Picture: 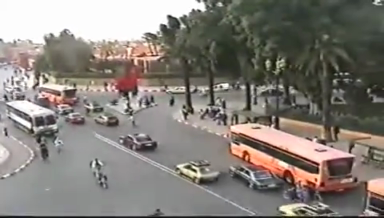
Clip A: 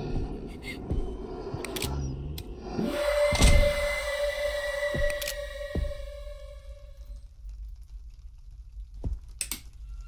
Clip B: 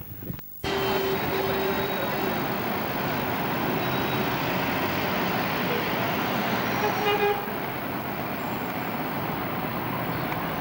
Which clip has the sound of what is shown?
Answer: B